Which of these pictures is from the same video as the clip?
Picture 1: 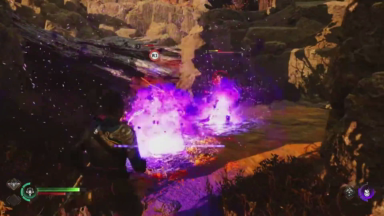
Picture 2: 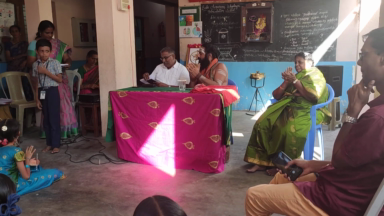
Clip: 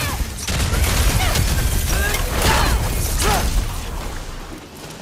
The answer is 1